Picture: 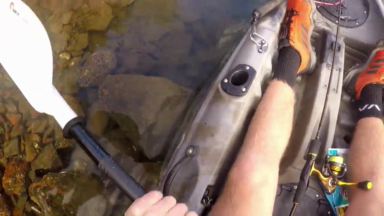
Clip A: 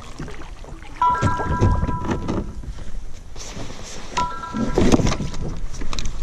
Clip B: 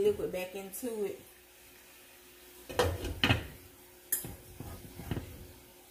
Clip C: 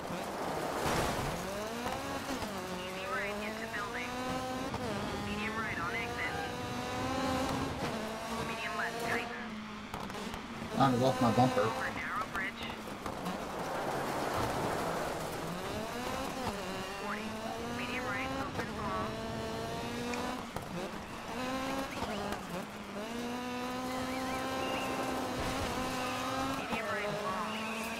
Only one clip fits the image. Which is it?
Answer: A